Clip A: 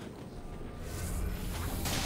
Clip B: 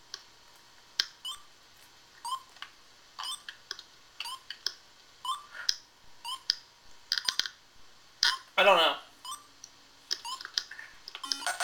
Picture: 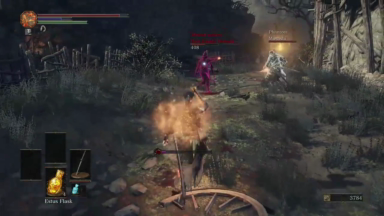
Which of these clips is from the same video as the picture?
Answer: A